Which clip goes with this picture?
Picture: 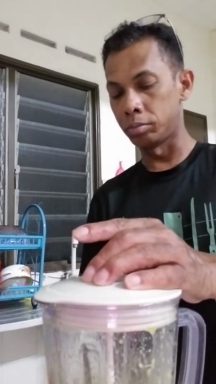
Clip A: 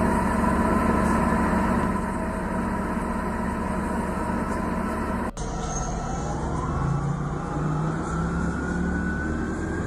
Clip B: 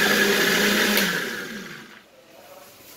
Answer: B